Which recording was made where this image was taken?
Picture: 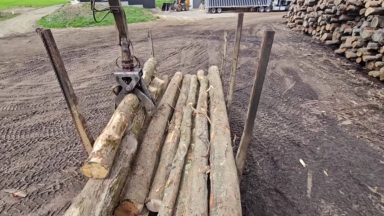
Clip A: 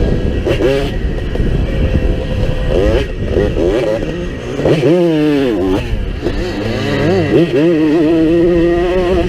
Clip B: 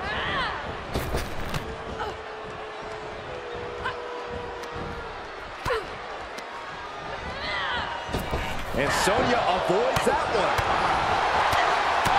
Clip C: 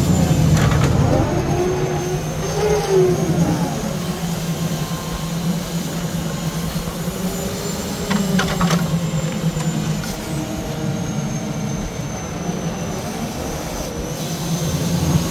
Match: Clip C